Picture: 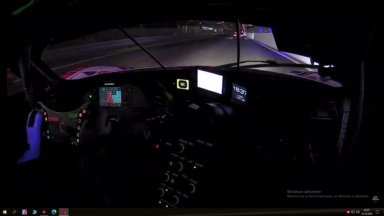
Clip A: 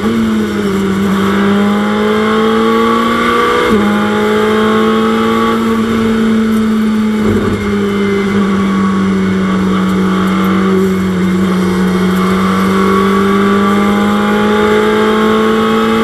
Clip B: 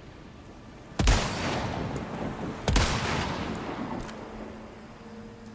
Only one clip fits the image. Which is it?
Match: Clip A